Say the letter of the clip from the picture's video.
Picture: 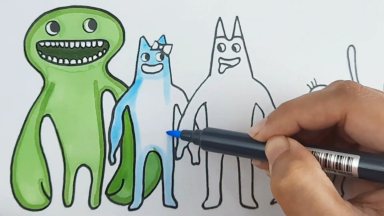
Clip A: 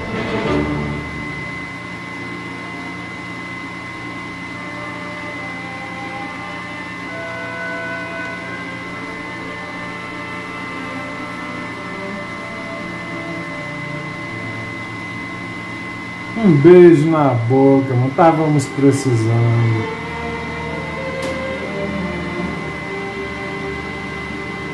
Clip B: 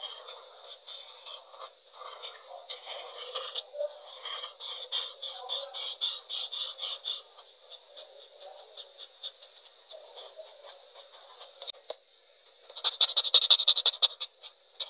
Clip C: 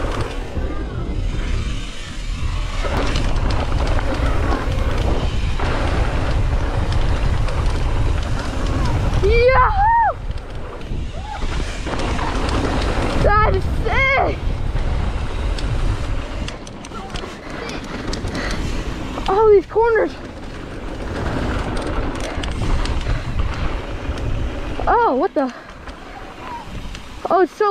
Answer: B